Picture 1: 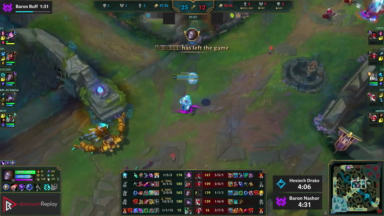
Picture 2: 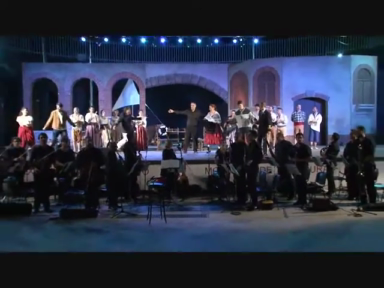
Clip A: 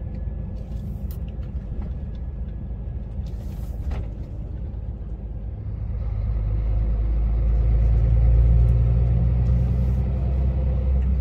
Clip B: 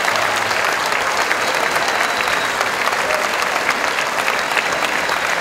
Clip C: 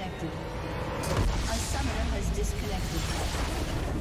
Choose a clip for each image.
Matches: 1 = C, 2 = B